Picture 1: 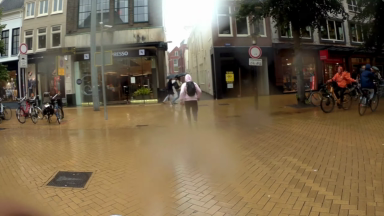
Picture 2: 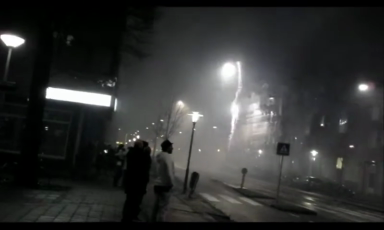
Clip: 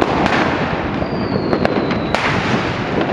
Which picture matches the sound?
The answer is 2